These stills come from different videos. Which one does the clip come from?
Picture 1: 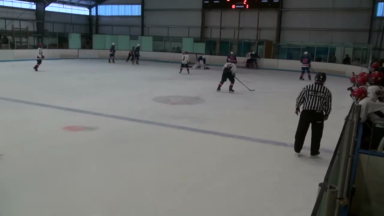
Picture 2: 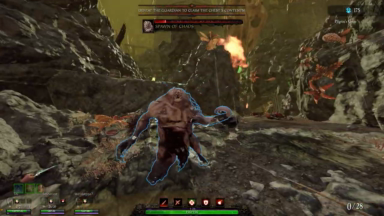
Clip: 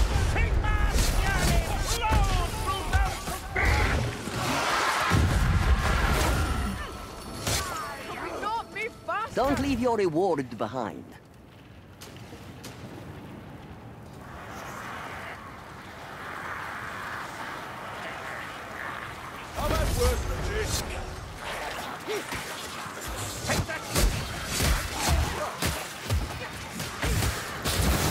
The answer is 2